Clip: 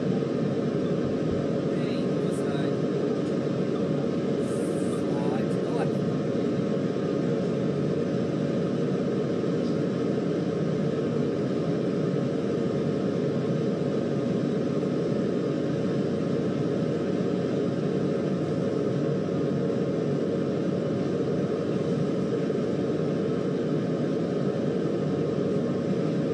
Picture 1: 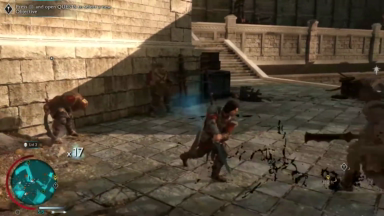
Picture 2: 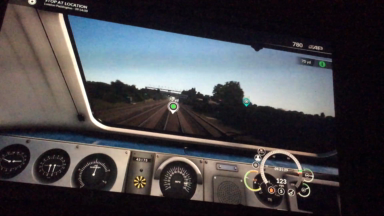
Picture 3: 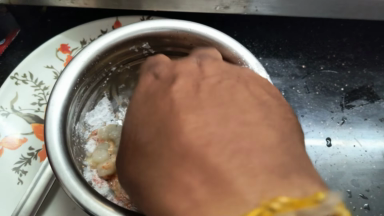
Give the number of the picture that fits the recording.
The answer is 2